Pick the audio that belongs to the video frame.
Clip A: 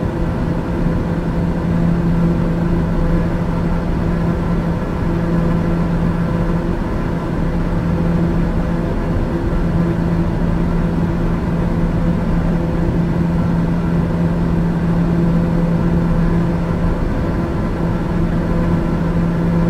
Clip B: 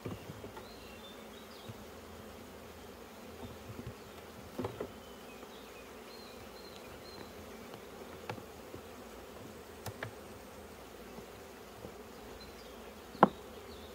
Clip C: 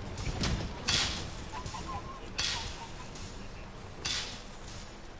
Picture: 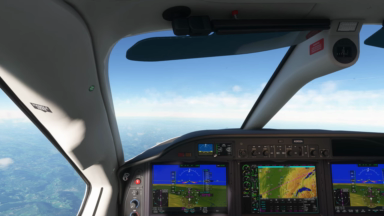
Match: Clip A